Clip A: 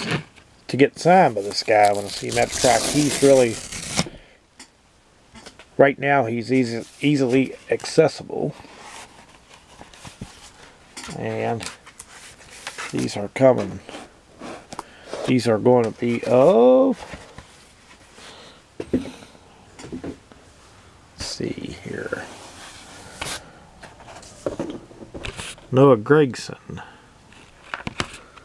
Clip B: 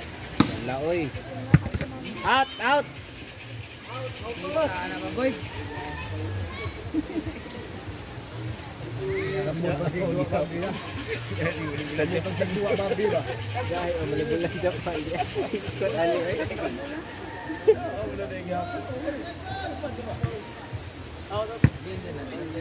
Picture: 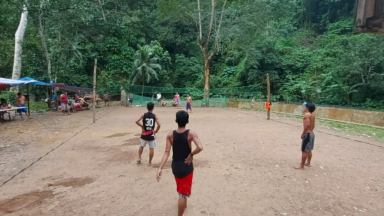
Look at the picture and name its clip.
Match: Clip B